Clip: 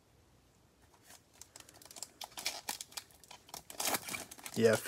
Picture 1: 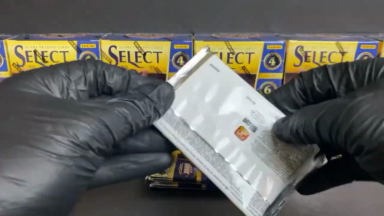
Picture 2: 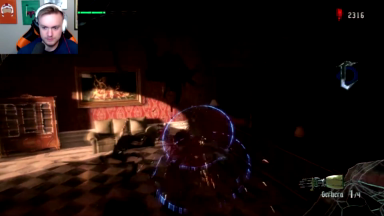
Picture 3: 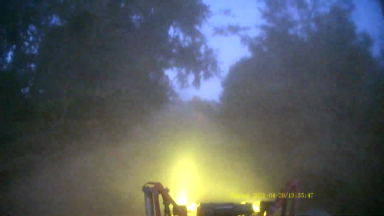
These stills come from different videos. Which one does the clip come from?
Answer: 1